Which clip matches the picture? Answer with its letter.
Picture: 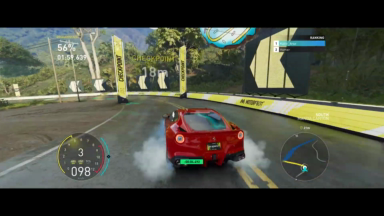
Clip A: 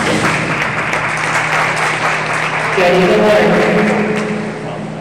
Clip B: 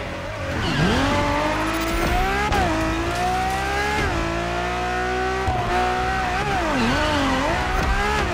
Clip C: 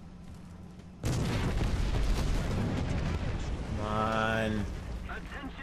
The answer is B